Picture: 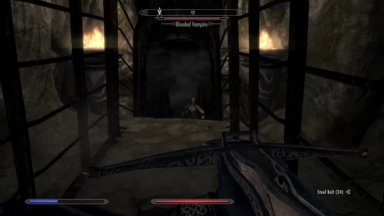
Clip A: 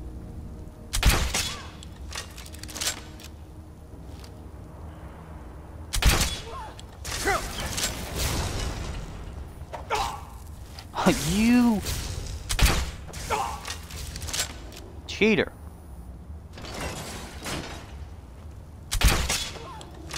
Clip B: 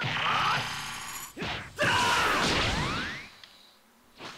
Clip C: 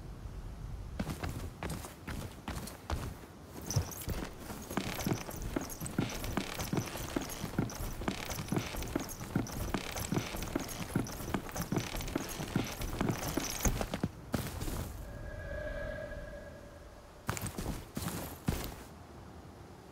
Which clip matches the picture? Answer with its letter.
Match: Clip A